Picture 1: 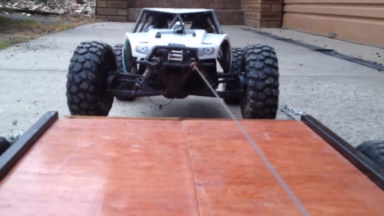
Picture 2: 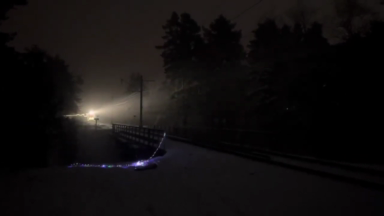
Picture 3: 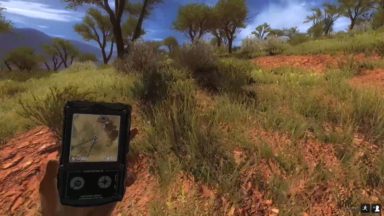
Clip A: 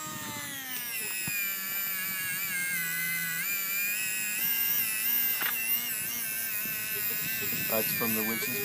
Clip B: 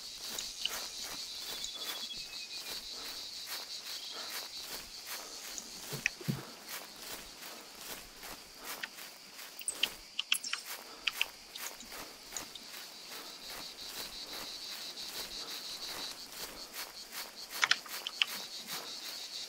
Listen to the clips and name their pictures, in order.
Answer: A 1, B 3